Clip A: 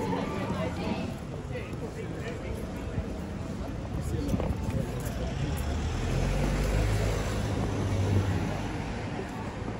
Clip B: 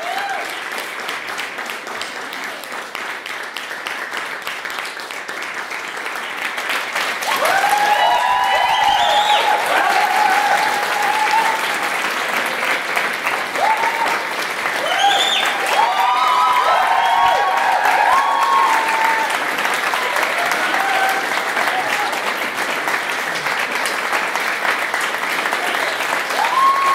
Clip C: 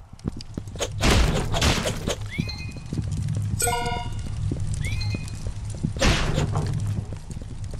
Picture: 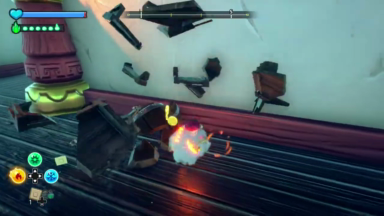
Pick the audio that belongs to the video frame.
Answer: C